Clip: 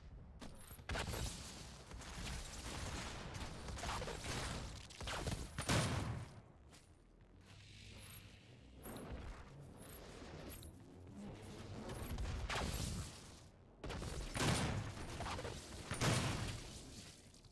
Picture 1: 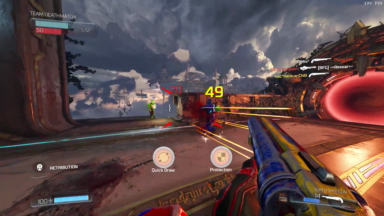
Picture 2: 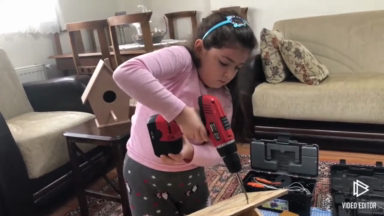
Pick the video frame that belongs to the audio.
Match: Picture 1